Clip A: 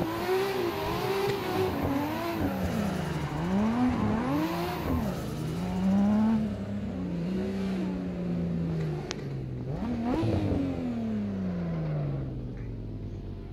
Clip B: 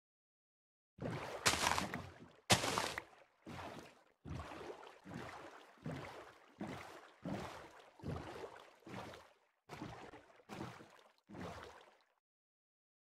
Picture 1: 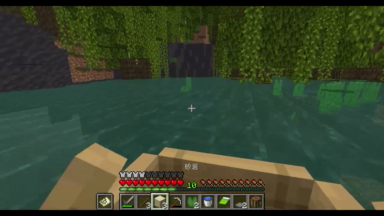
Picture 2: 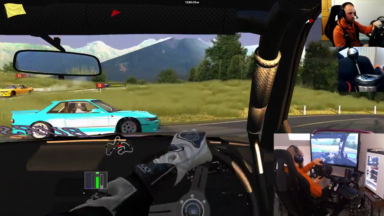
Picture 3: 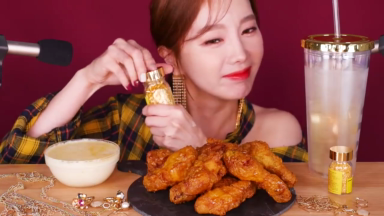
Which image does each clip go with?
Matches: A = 2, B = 1